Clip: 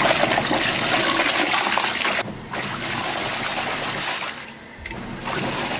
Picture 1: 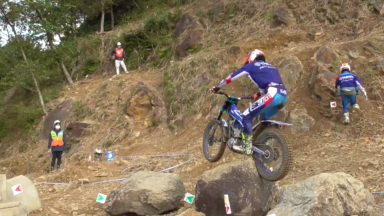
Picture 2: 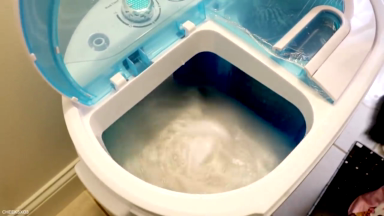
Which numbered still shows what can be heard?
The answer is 2